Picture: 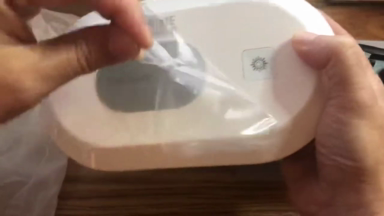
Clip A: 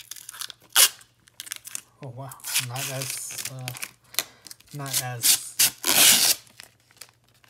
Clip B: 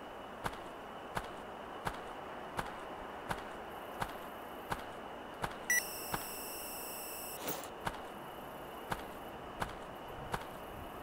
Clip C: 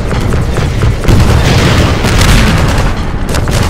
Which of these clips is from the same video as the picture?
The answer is A